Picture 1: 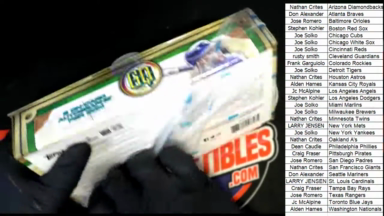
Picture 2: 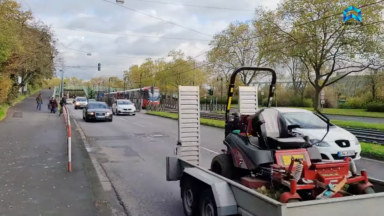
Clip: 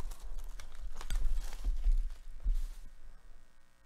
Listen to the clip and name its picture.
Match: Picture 1